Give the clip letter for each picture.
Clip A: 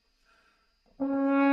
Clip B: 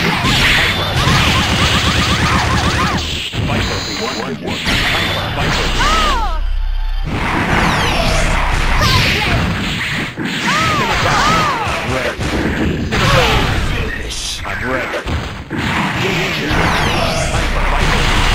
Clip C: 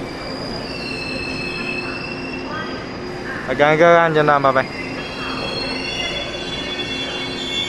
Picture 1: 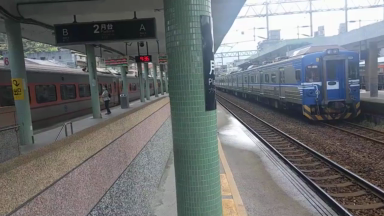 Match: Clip C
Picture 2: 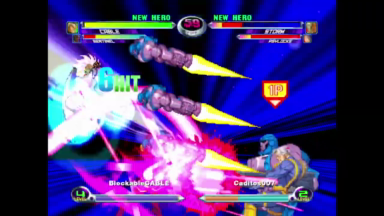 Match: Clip B